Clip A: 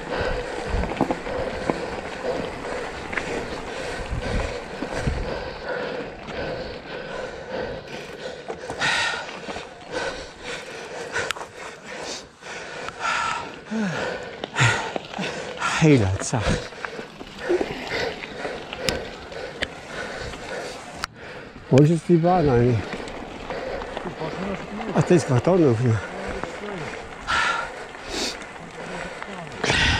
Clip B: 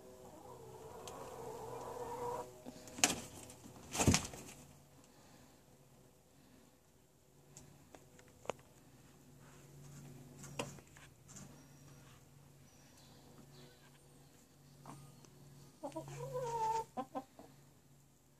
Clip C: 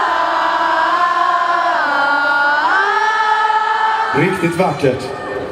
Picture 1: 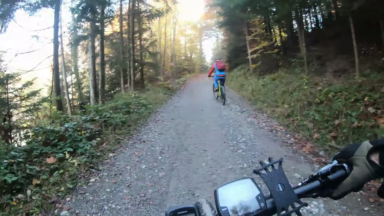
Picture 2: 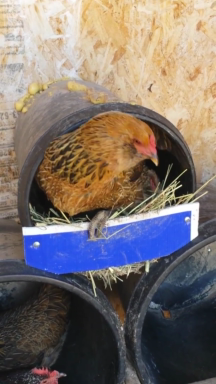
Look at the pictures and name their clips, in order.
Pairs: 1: A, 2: B